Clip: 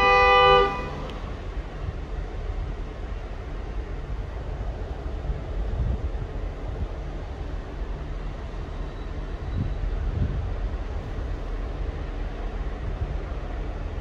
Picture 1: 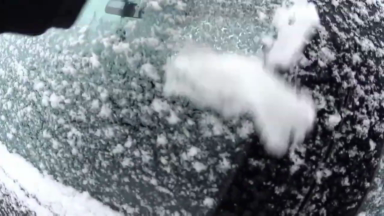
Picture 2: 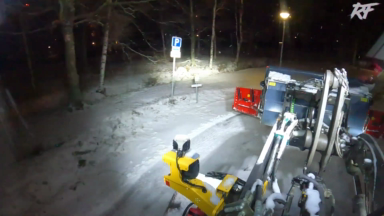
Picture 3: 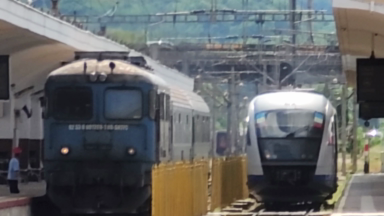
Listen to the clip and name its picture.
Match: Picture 3